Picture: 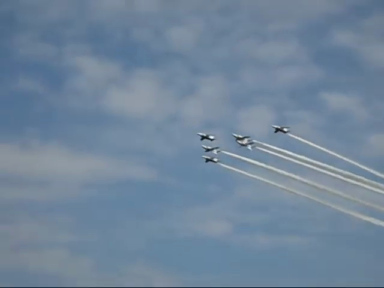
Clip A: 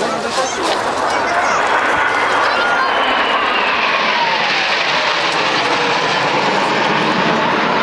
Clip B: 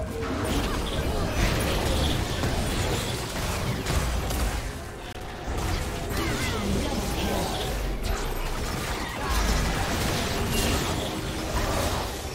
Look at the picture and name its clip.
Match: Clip A